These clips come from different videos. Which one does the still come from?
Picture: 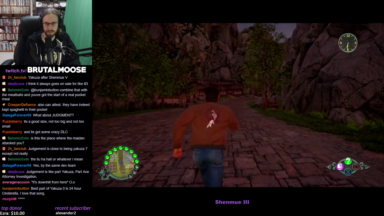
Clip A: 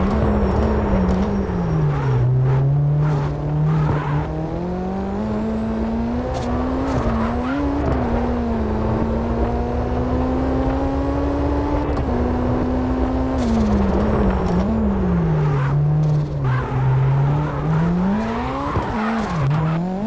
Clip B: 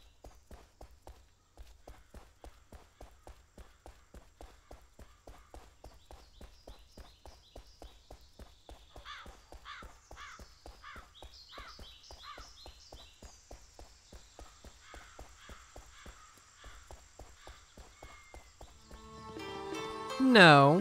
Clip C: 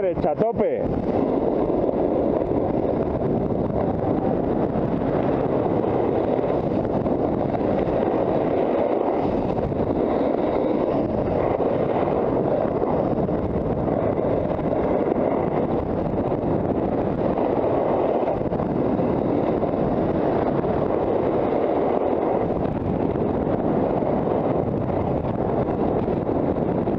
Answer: B